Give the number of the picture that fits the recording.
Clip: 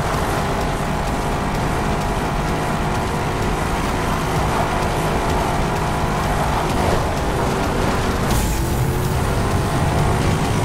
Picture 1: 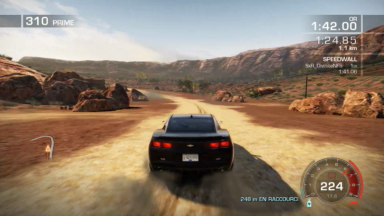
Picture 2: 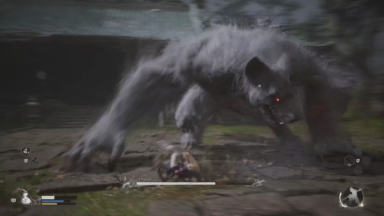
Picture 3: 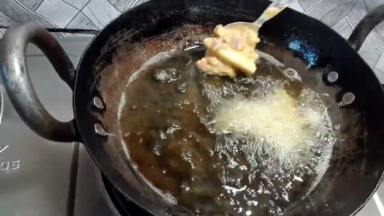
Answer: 1